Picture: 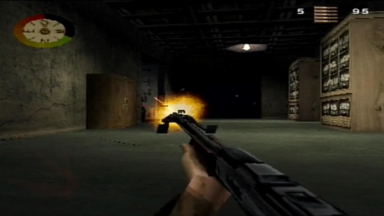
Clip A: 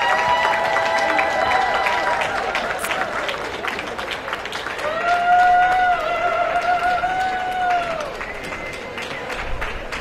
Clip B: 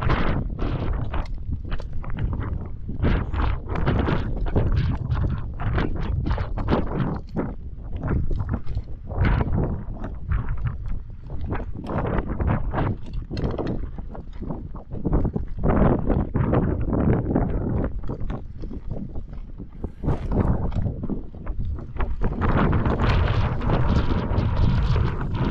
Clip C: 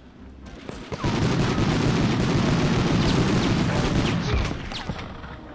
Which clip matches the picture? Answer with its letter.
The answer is C